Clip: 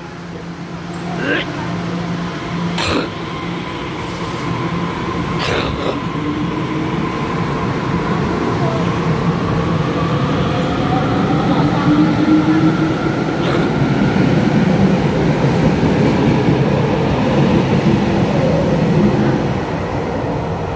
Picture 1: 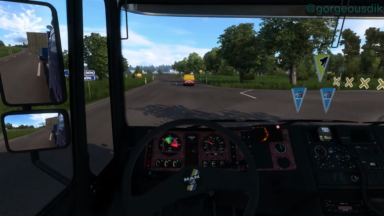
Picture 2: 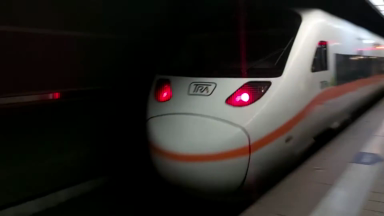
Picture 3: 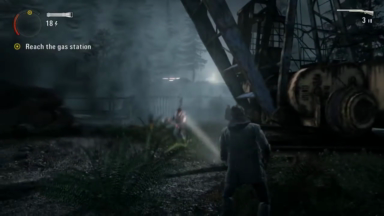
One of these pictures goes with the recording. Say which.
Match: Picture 2